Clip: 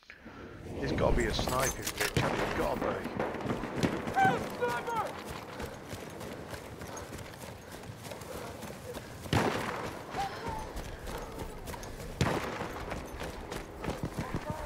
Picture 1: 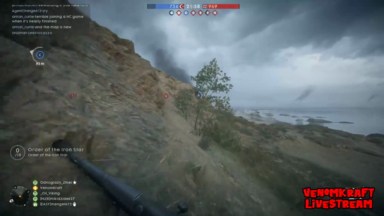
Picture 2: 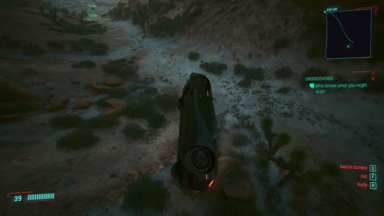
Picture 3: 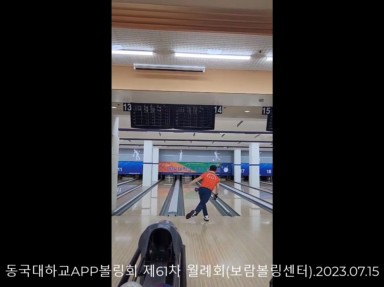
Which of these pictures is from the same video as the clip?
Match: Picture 1